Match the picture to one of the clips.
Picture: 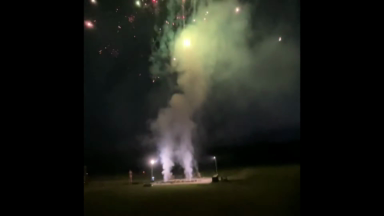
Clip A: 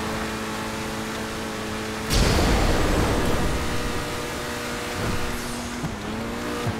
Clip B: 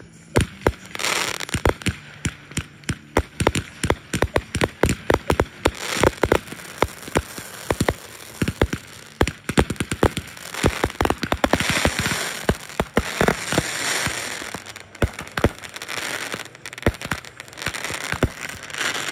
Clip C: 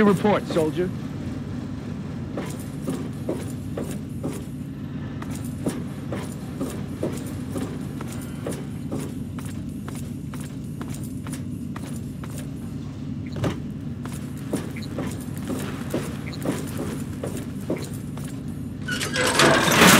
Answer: B